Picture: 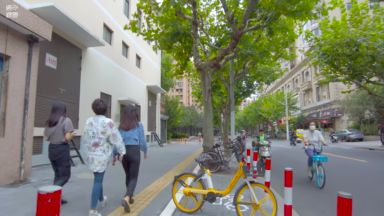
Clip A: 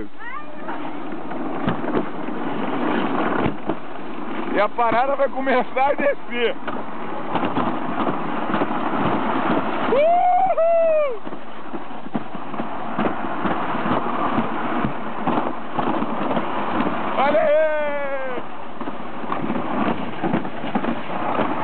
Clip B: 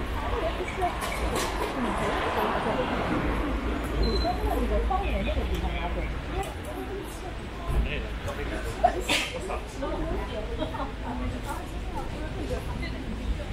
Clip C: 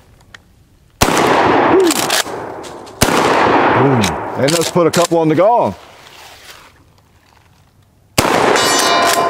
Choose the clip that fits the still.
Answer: B